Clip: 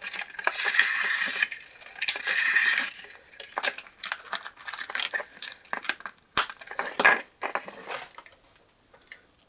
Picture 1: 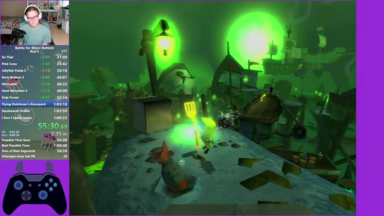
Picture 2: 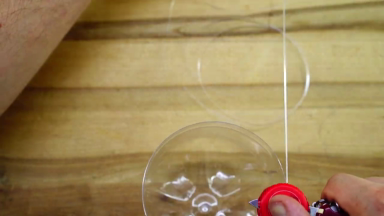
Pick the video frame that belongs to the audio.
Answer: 2